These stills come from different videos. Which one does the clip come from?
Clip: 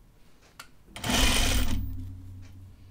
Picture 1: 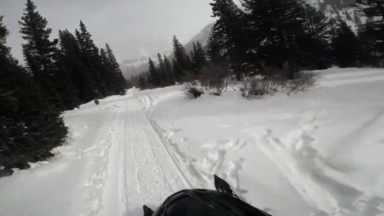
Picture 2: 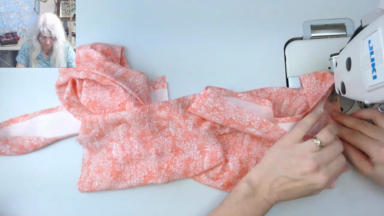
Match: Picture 2